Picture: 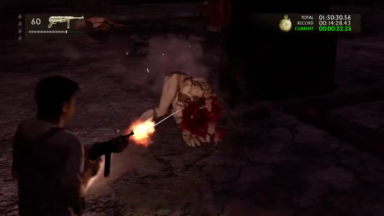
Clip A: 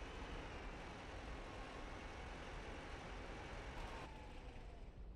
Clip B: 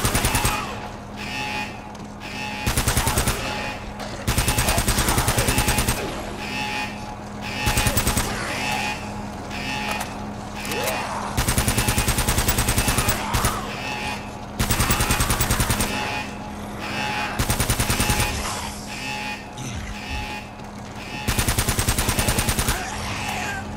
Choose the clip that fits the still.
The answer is B